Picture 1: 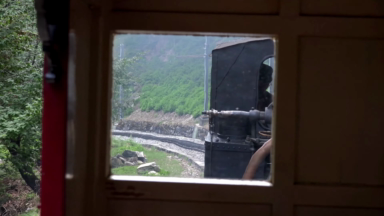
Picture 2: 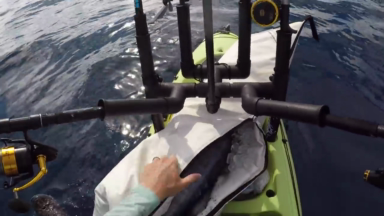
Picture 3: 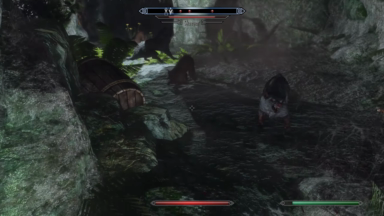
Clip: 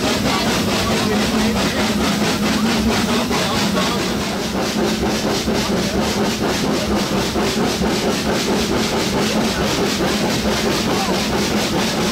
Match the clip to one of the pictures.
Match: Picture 1